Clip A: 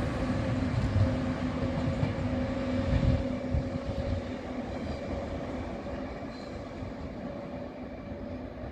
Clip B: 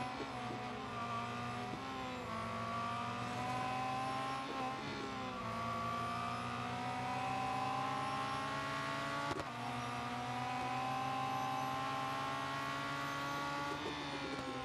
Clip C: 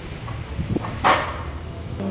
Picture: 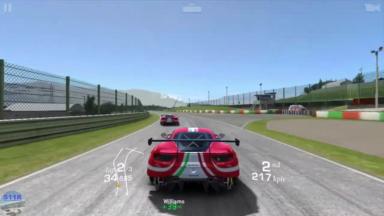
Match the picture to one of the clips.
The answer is B